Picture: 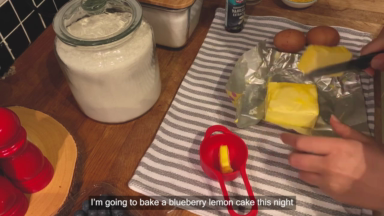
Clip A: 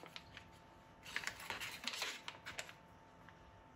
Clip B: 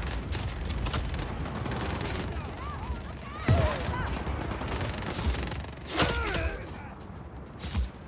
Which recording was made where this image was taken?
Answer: A